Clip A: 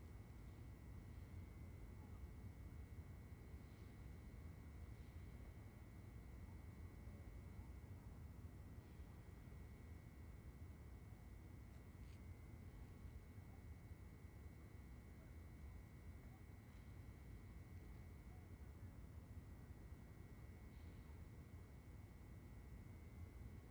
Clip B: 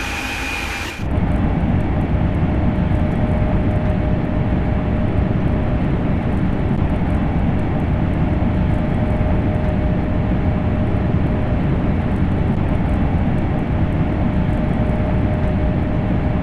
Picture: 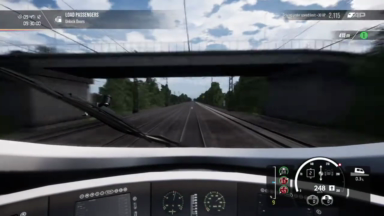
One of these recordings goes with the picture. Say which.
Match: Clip B